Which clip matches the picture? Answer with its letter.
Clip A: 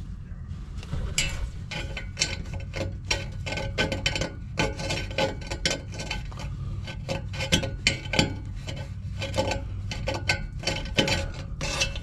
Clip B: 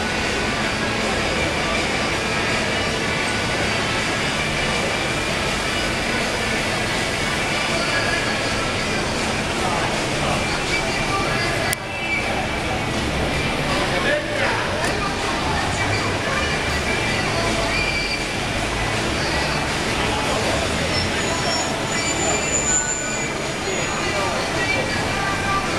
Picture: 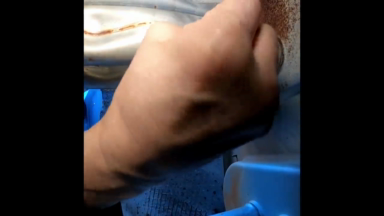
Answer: A